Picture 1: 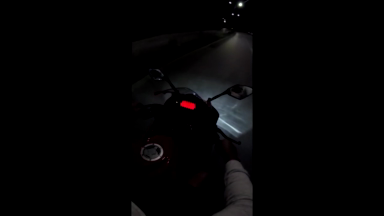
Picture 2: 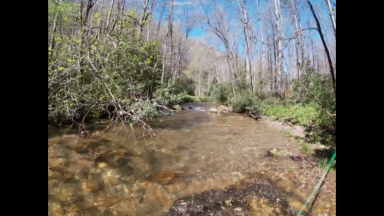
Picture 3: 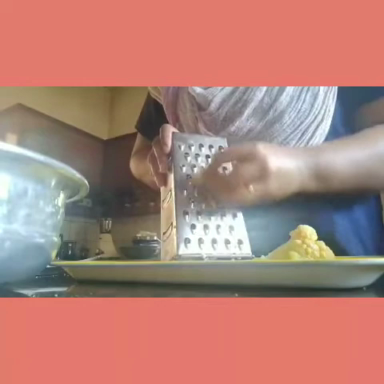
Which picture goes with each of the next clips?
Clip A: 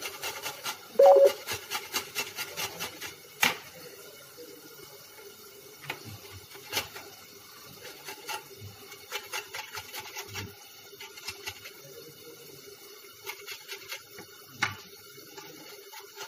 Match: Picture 3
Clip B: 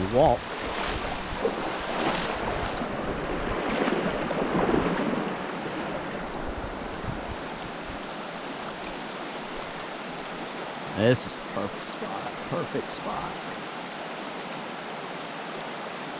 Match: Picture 2